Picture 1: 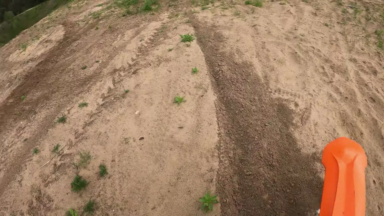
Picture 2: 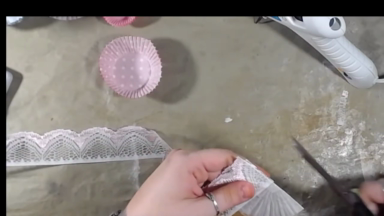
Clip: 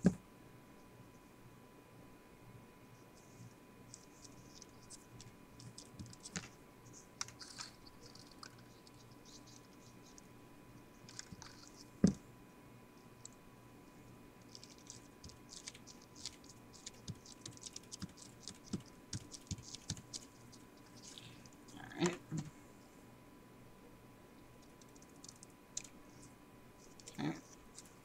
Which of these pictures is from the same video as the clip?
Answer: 2